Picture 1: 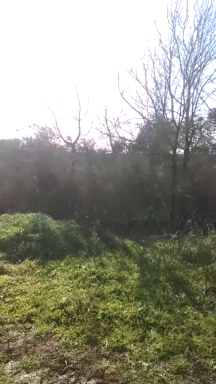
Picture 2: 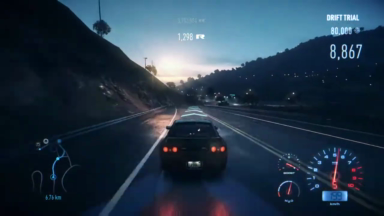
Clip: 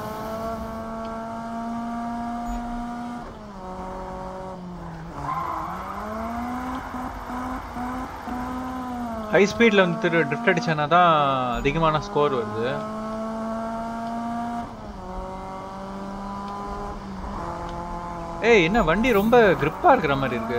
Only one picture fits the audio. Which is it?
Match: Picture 2